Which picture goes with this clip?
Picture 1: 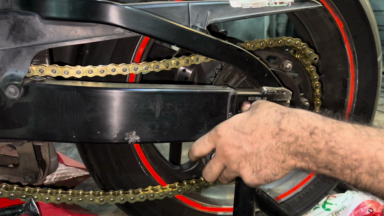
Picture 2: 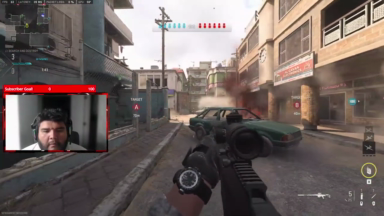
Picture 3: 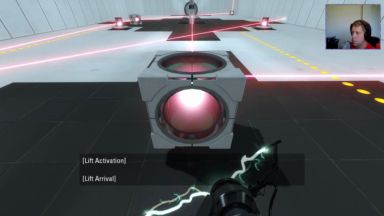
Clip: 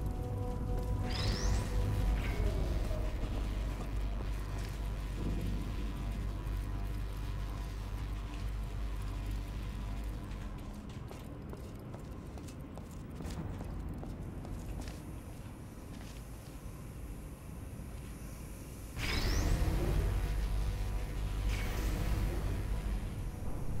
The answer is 3